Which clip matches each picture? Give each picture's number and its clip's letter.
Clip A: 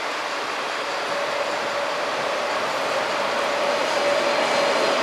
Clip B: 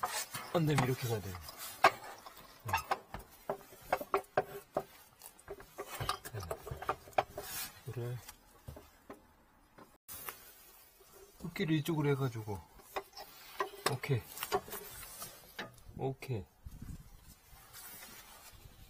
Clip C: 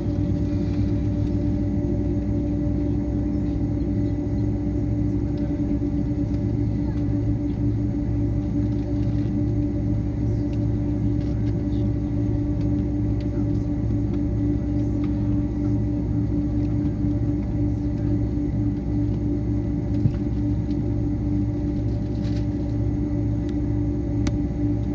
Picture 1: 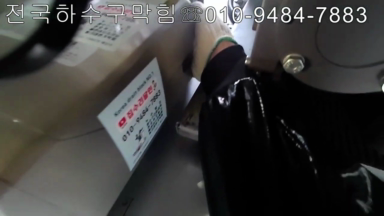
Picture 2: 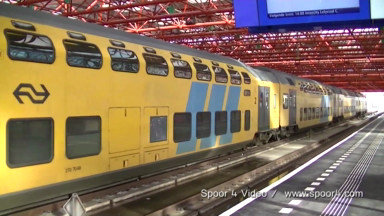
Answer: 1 B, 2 A